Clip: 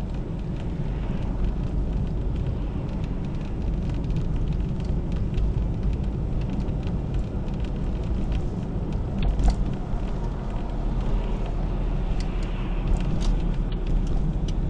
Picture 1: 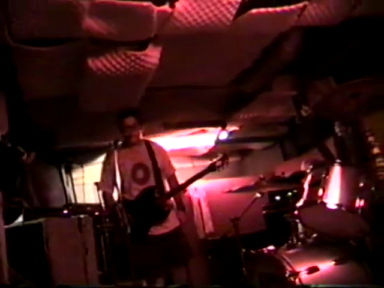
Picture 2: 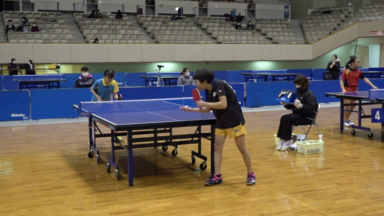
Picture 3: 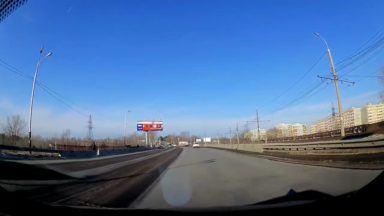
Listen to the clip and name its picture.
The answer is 3